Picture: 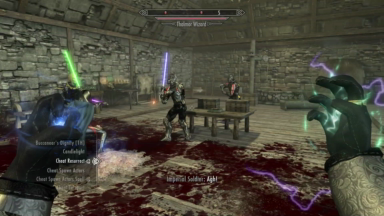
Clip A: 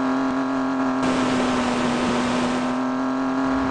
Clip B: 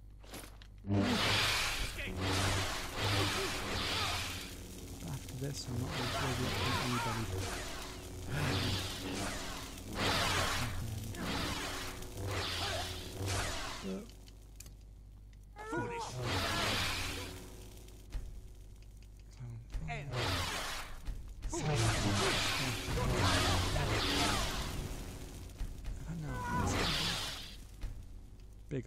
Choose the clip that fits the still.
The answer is B